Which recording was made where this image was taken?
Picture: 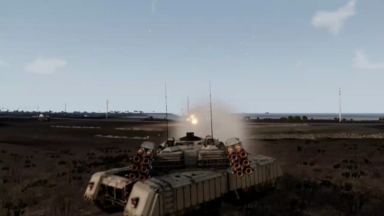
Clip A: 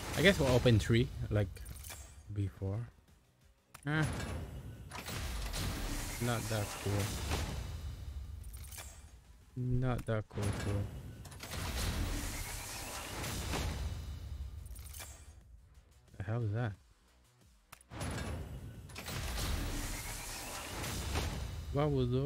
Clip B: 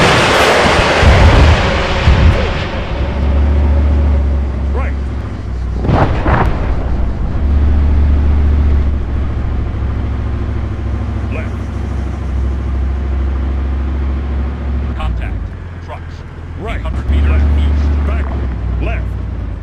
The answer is B